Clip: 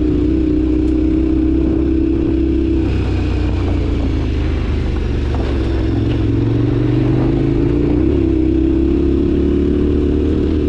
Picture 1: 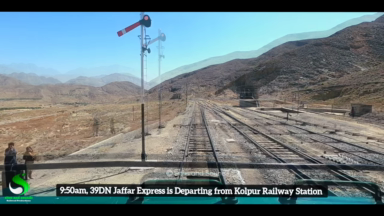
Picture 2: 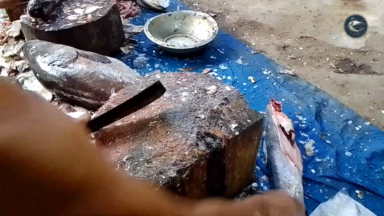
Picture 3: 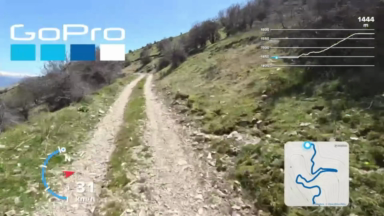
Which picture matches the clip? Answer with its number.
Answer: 3